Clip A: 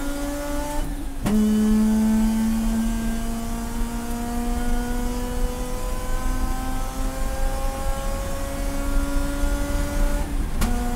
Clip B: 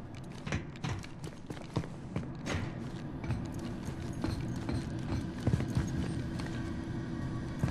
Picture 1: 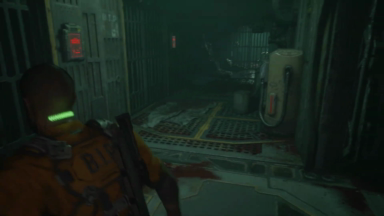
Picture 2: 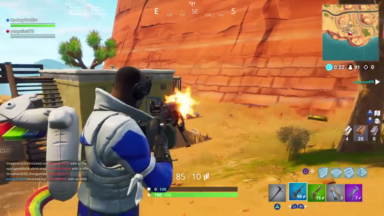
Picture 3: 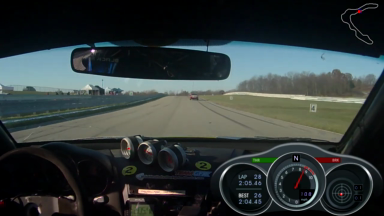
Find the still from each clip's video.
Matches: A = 3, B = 1